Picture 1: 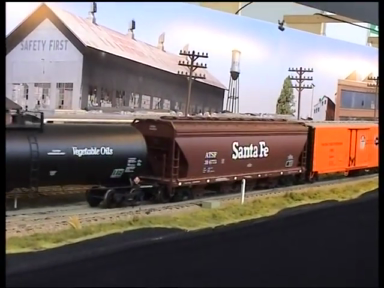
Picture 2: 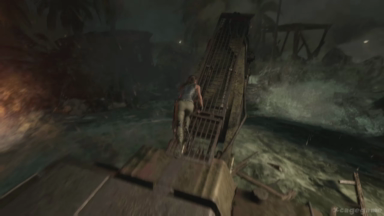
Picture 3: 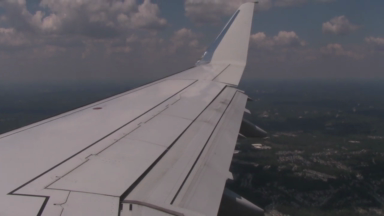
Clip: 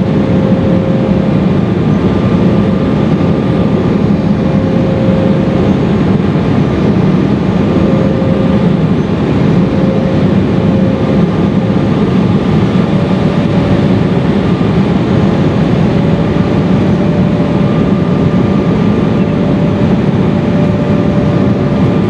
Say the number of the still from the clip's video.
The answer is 3